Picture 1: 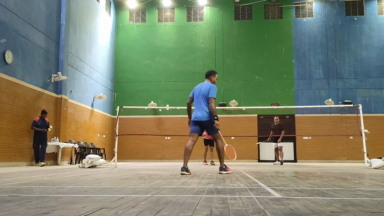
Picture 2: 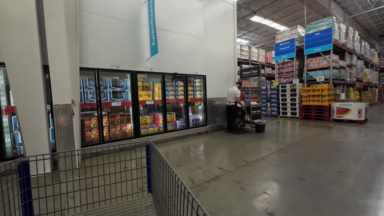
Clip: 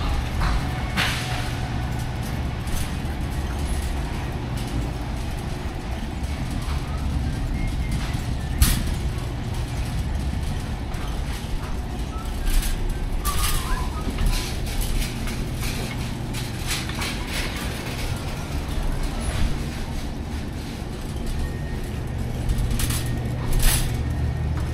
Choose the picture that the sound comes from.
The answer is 2